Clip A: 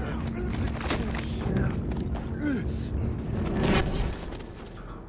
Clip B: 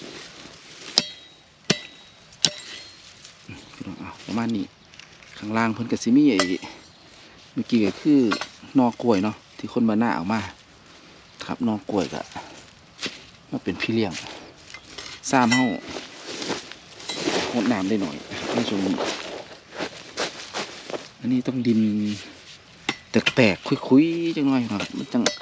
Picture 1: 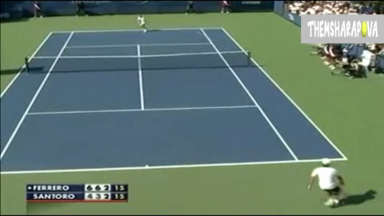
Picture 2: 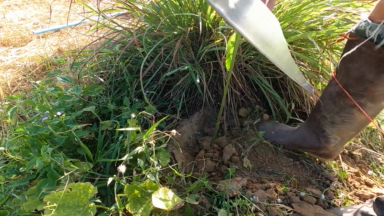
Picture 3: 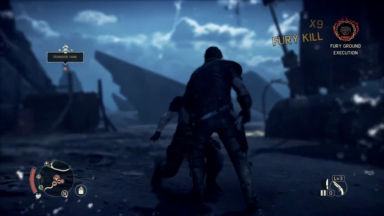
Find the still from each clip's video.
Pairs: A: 3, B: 2